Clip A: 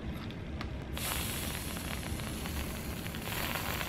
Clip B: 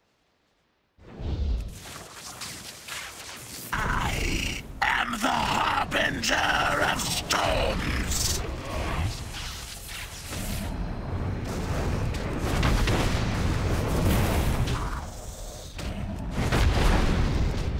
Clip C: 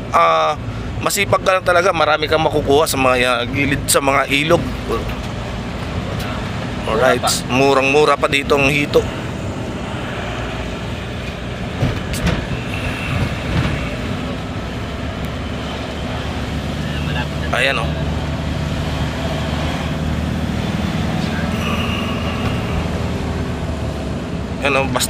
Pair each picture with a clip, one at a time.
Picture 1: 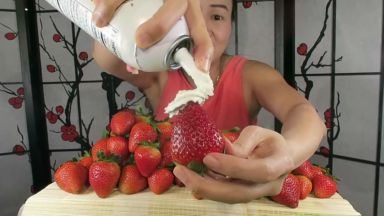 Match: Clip A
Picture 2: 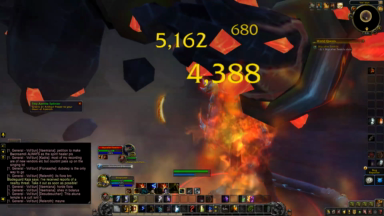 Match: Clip B